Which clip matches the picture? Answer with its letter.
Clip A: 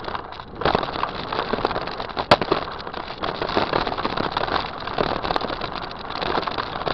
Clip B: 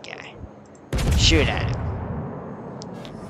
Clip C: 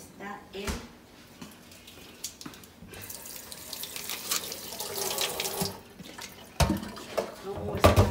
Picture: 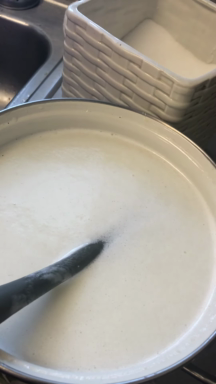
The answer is C